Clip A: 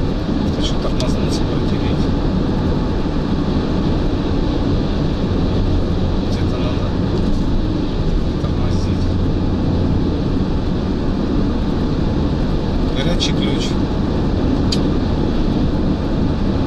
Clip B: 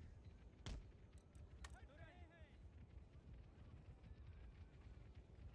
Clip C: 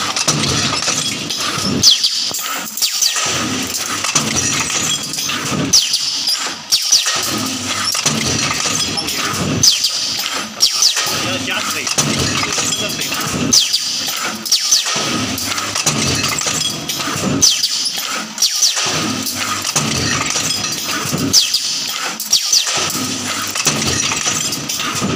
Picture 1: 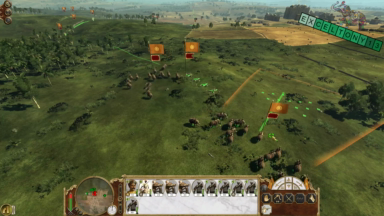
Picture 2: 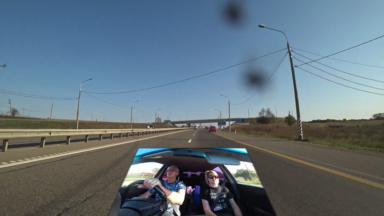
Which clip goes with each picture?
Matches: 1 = B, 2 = A